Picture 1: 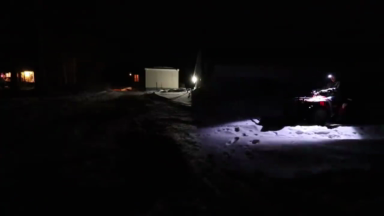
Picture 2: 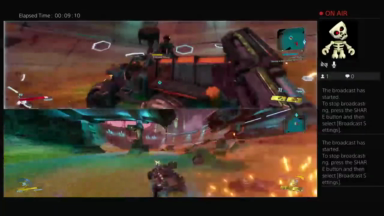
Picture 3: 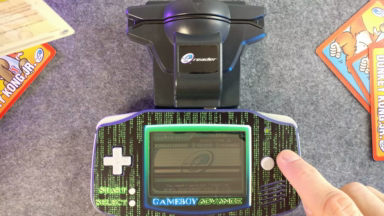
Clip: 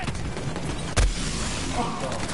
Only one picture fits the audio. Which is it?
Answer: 2